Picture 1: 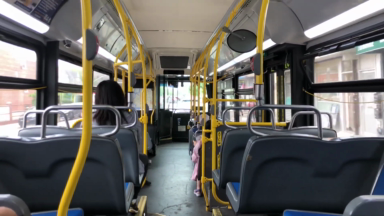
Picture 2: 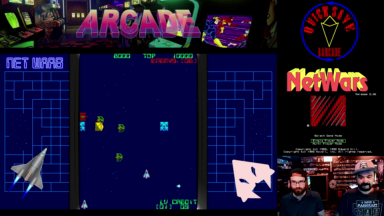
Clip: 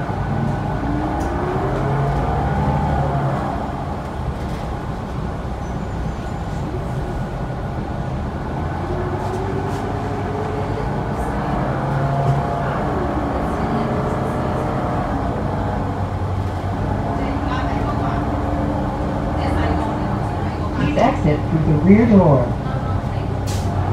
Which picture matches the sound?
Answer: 1